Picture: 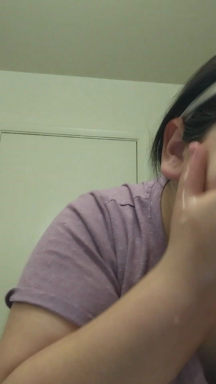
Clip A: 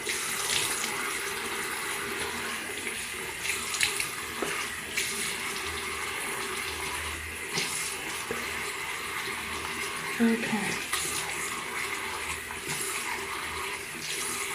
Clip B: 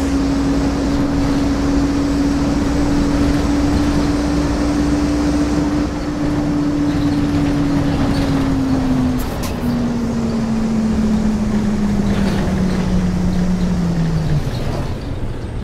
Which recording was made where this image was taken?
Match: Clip A